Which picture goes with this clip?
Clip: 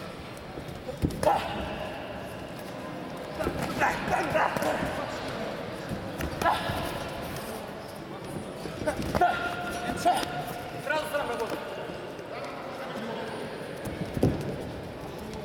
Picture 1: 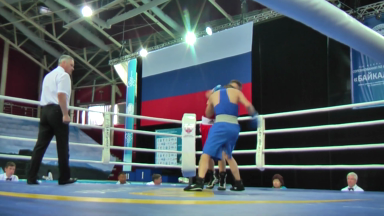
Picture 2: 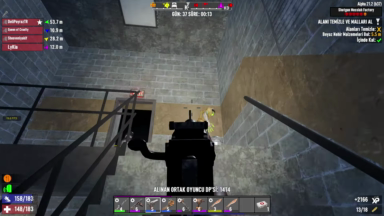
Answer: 1